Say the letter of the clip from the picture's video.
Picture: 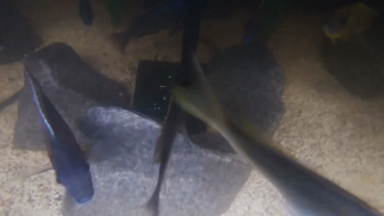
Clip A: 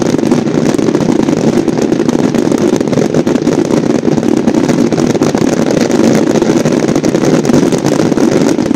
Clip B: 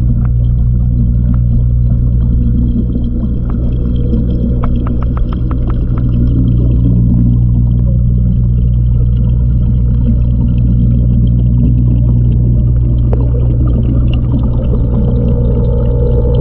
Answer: B